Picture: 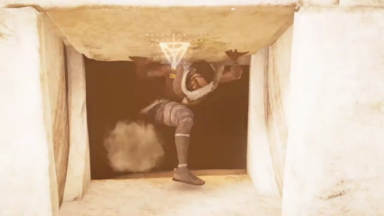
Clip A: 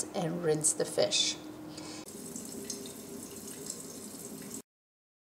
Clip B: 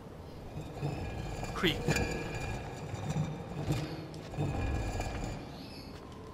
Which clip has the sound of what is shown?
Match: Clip B